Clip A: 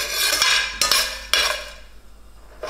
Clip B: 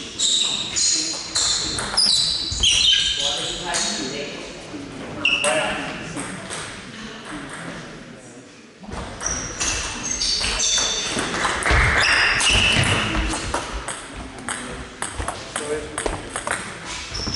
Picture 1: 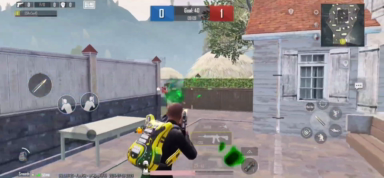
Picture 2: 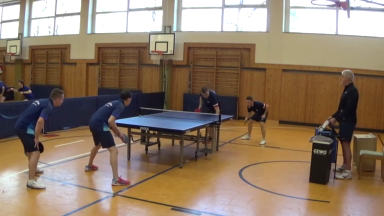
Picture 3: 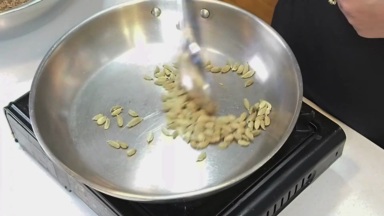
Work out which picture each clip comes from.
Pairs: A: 3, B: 2